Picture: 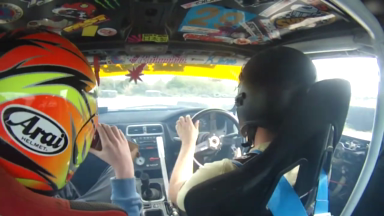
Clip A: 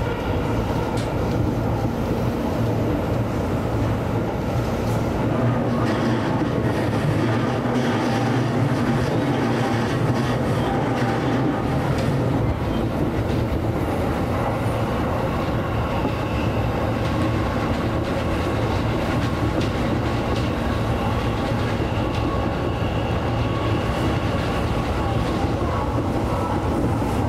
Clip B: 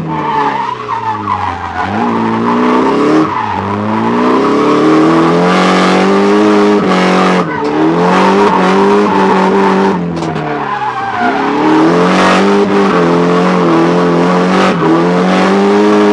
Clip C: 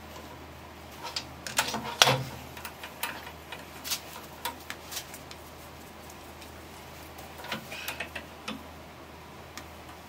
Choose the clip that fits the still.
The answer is B